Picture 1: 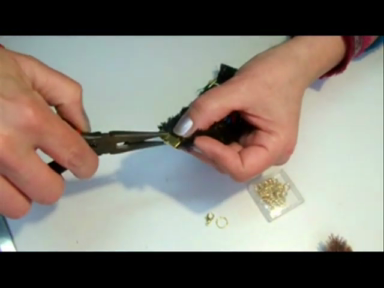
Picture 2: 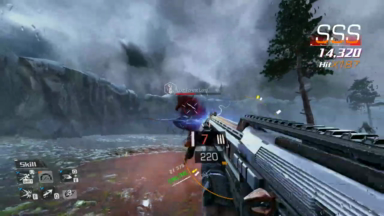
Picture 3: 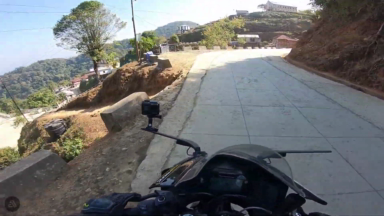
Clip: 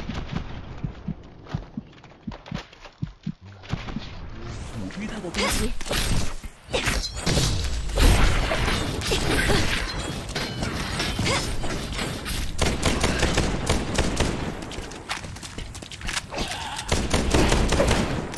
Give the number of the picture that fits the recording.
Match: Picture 2